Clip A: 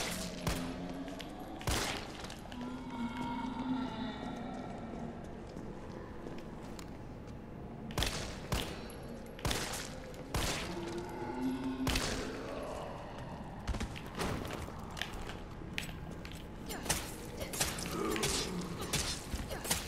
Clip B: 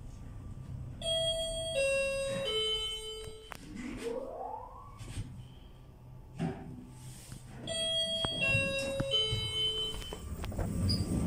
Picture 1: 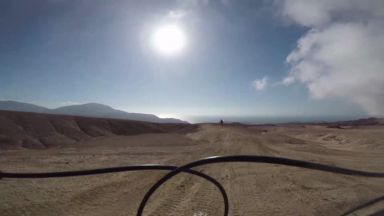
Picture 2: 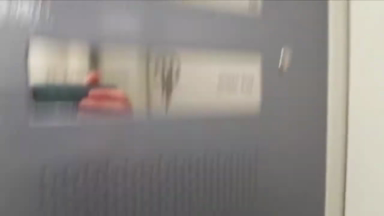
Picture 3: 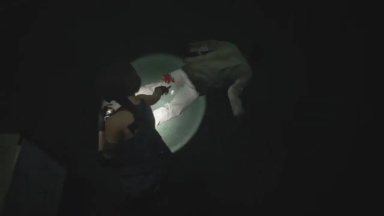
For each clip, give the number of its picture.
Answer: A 3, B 2